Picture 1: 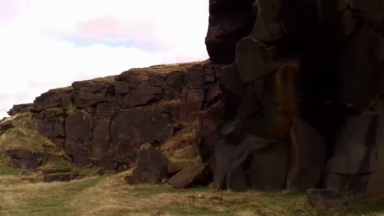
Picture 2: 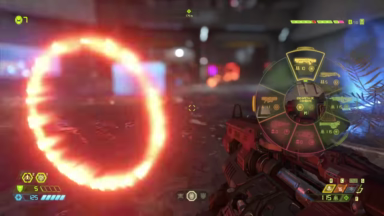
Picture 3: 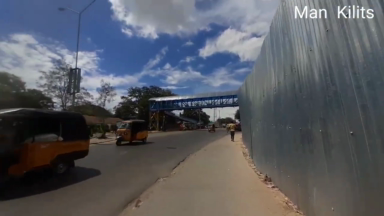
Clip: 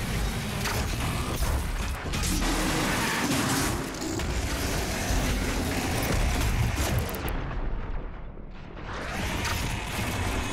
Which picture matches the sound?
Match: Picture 2